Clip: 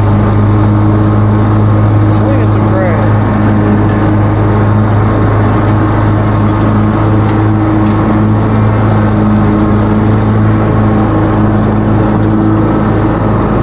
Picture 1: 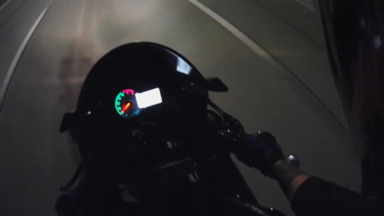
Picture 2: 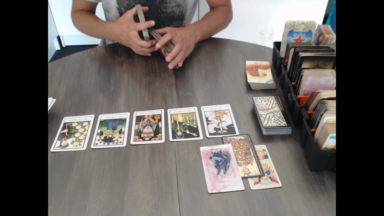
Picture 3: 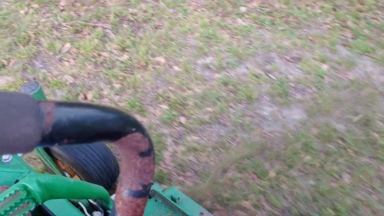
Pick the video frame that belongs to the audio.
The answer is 3